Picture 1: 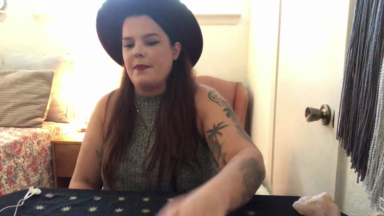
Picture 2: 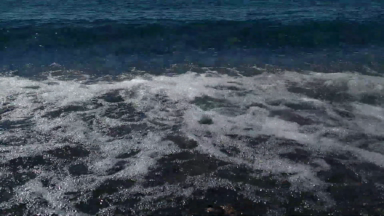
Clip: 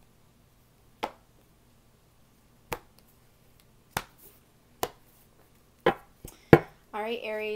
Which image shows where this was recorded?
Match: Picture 1